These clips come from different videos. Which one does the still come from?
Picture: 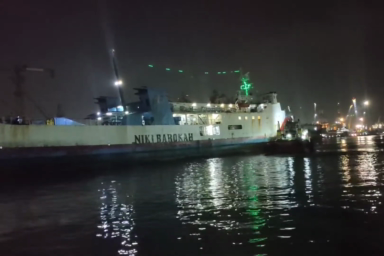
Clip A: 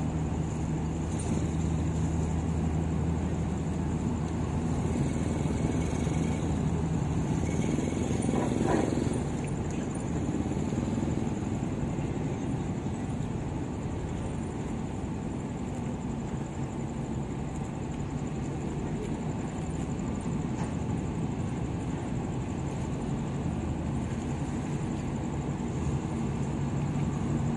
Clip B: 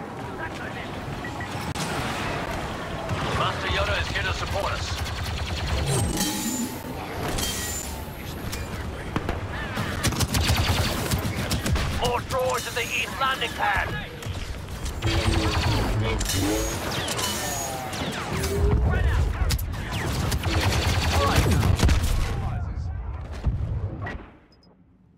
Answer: A